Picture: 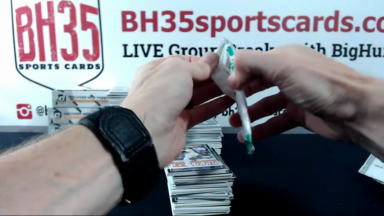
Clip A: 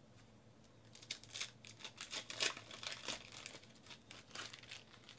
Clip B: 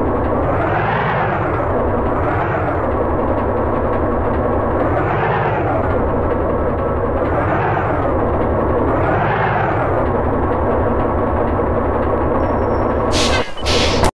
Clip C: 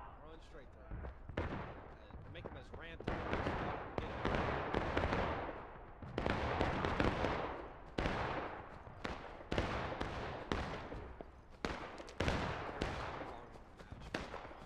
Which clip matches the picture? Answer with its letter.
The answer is A